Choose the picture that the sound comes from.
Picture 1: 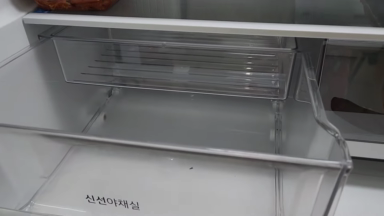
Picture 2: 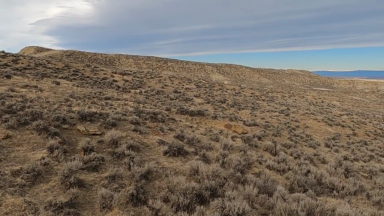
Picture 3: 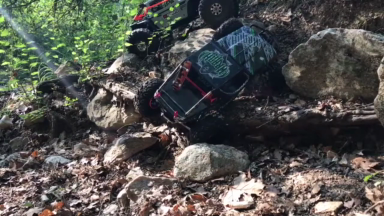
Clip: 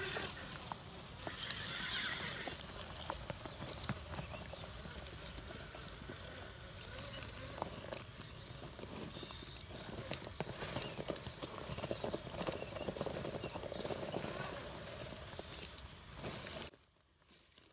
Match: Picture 3